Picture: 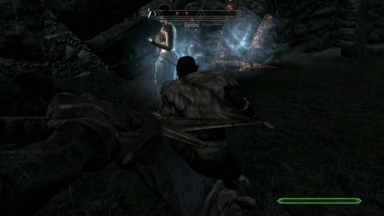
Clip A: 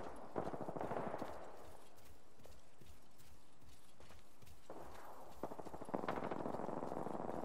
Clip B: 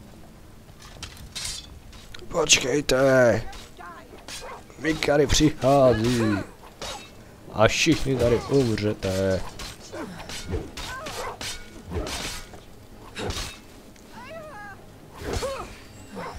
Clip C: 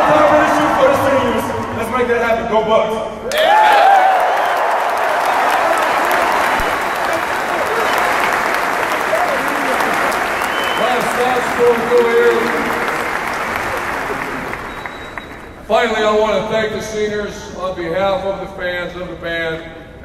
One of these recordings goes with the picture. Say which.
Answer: B